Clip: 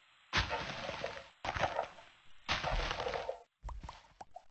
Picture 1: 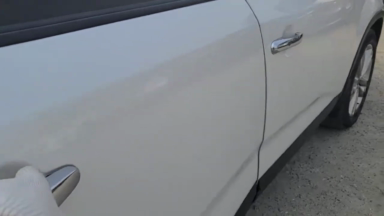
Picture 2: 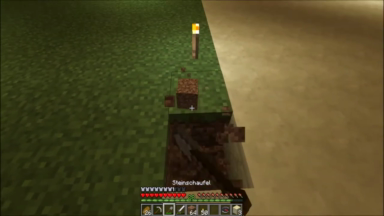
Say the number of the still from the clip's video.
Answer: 2